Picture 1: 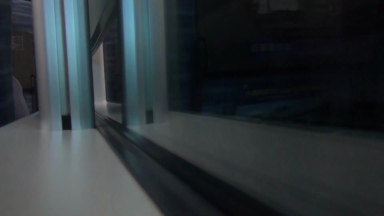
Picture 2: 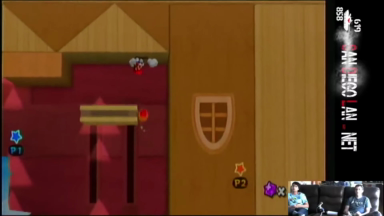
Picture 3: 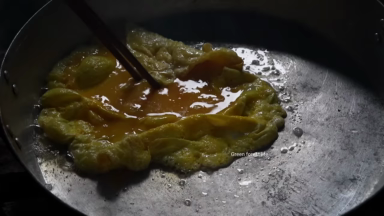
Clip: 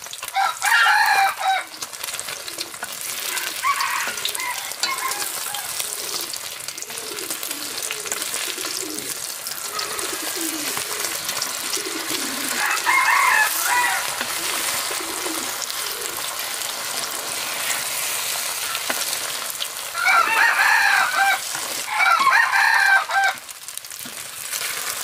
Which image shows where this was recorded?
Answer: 3